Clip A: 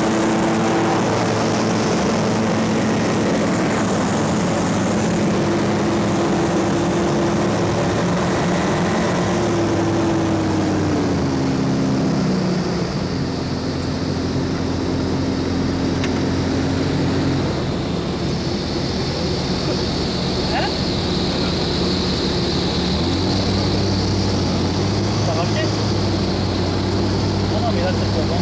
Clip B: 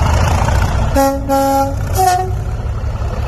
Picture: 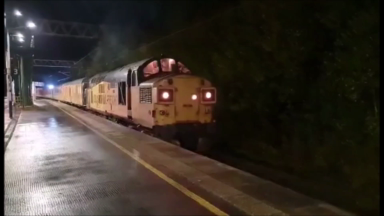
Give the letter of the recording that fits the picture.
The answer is B